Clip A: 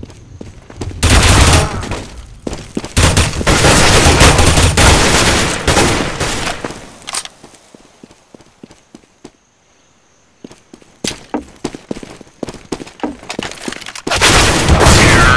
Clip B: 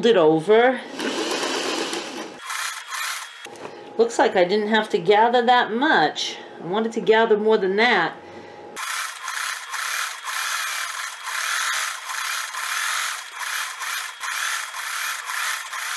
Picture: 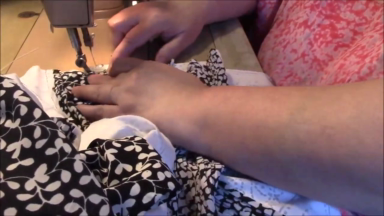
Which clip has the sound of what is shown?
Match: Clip B